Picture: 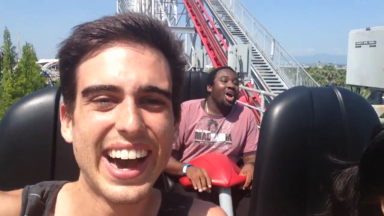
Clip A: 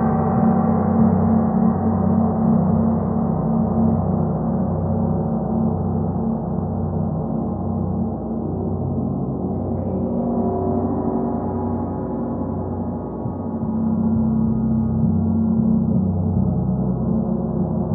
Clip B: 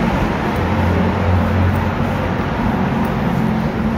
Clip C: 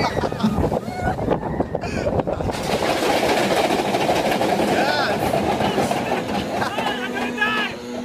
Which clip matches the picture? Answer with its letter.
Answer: C